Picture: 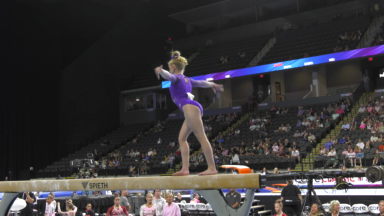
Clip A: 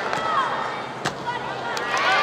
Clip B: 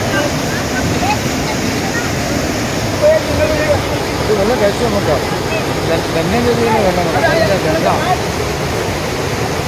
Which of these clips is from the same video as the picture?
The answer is A